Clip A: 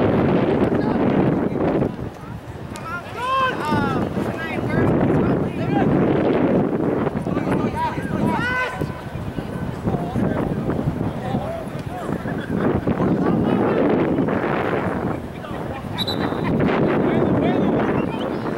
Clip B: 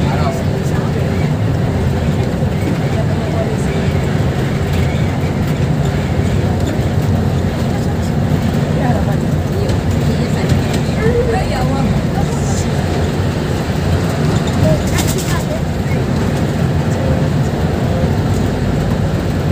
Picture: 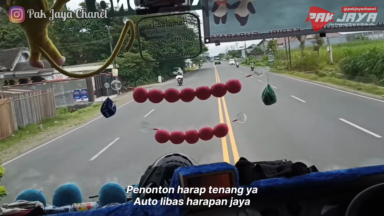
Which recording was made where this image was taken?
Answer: B